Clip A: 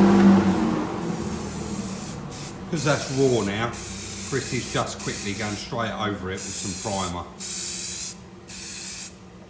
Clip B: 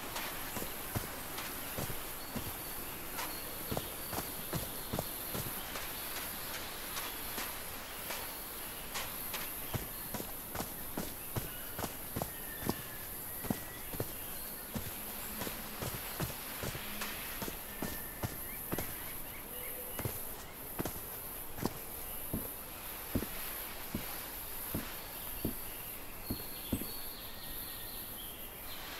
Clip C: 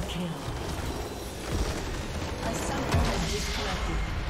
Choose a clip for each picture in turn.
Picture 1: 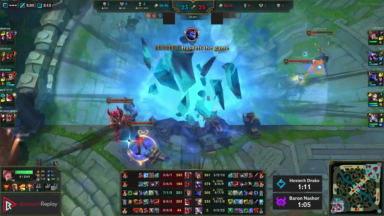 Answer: C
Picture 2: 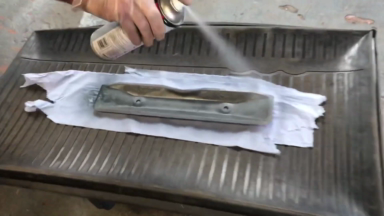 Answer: A